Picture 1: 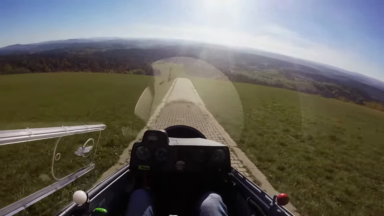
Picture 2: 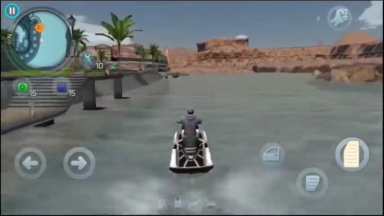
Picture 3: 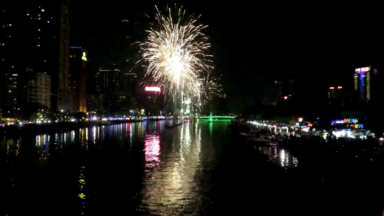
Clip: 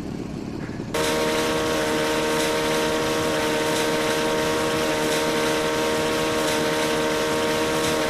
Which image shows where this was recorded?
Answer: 2